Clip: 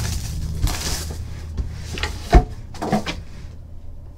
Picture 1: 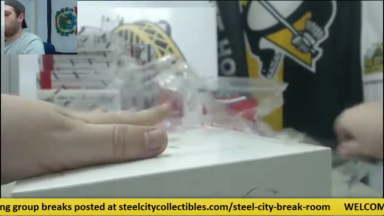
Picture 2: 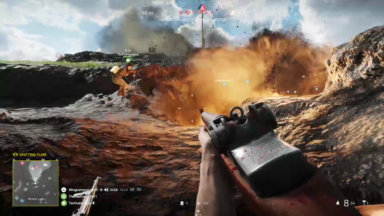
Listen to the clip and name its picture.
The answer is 1